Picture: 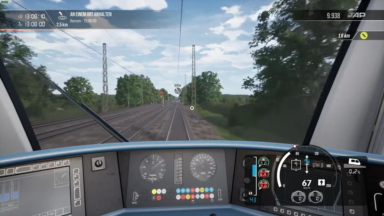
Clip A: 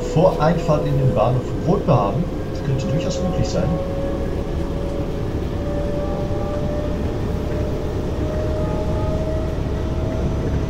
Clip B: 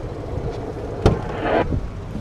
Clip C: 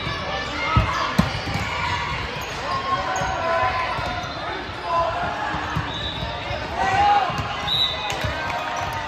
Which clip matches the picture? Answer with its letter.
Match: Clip A